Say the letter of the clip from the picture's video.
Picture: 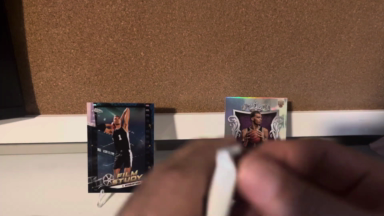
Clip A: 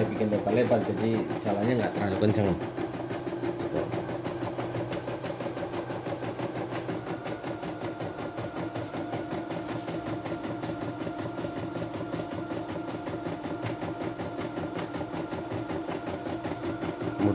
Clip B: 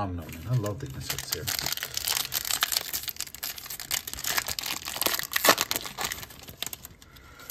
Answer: B